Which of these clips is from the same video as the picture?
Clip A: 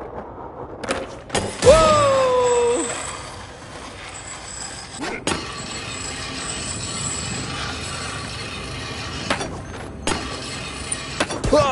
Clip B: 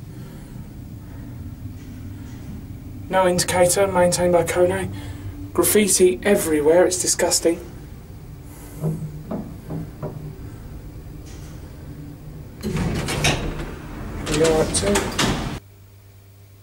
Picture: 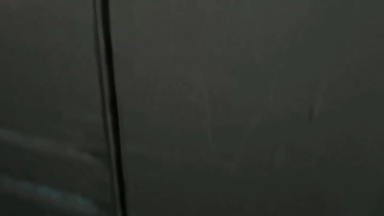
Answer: B